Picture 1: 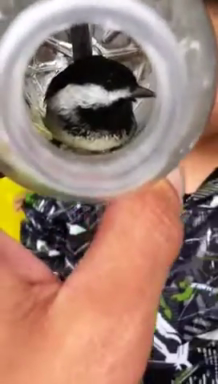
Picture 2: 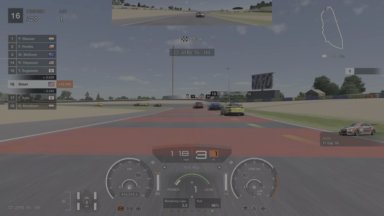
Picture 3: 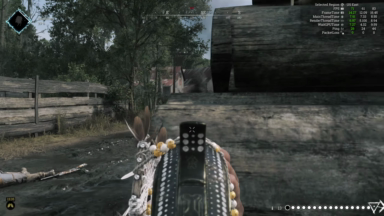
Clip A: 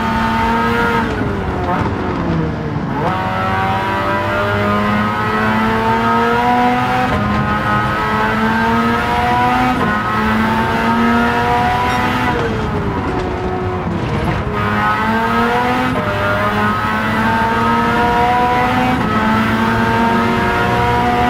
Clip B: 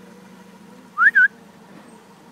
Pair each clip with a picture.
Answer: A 2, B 1